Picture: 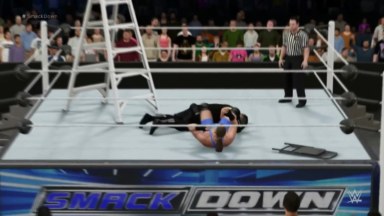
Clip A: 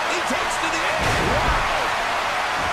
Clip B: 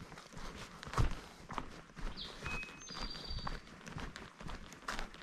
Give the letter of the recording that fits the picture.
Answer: A